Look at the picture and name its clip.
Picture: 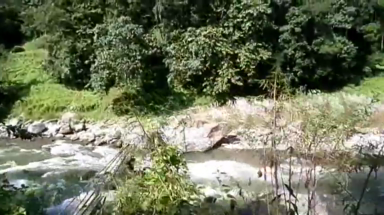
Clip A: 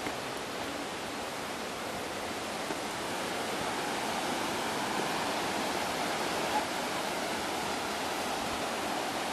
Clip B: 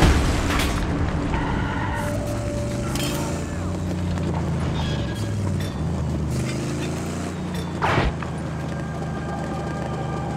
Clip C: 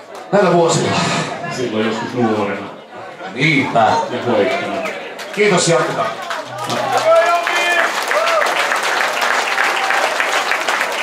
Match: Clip A